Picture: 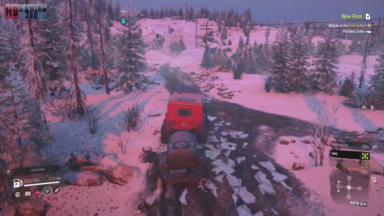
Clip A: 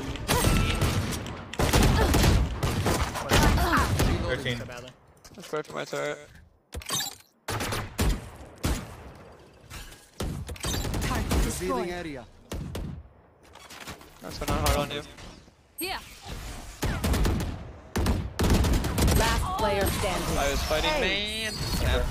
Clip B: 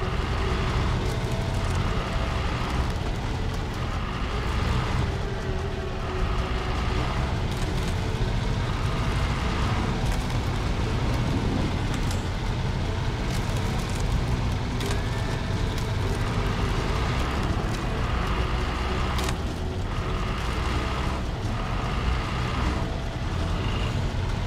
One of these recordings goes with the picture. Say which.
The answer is B